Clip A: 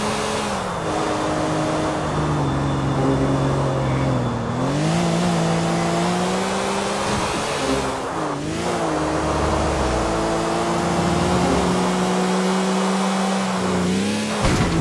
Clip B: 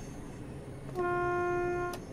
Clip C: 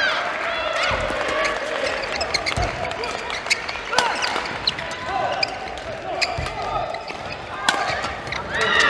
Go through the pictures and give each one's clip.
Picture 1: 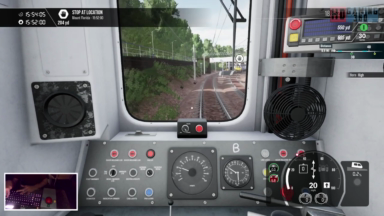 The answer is B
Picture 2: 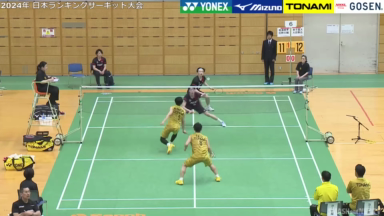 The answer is C